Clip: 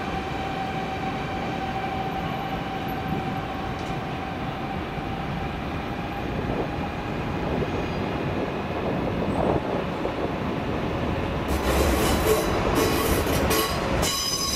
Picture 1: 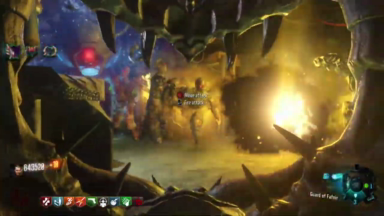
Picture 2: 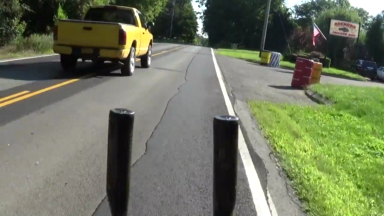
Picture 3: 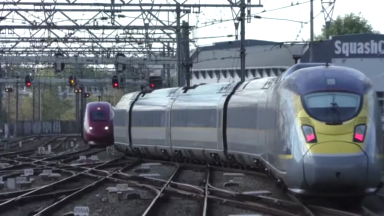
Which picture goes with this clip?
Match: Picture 3